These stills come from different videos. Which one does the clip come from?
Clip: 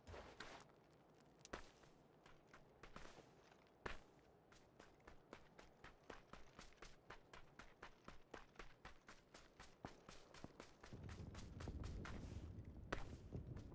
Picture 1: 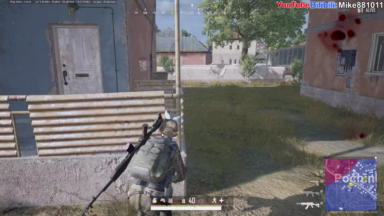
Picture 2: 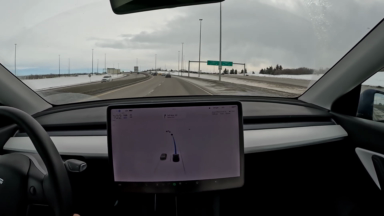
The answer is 1